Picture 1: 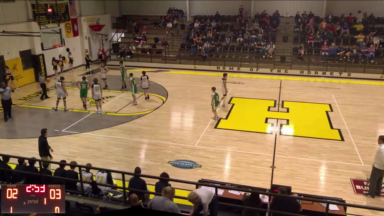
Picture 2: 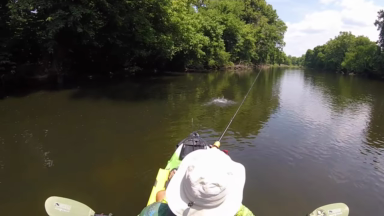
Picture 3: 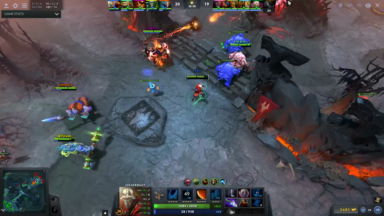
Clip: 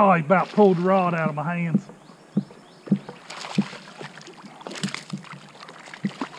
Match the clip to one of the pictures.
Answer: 2